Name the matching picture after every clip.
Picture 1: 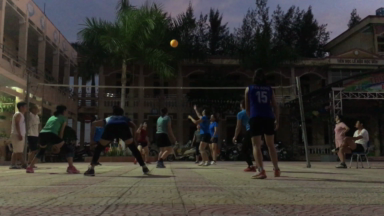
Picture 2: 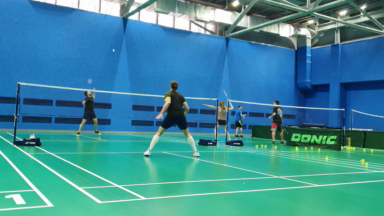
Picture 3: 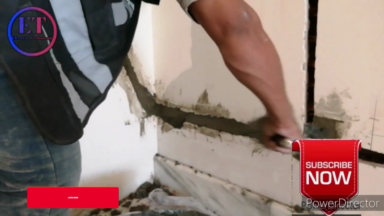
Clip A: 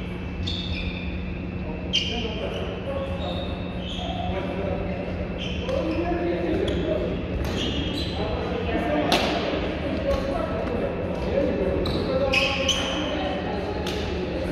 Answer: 2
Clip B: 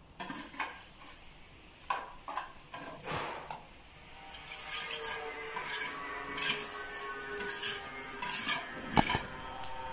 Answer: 3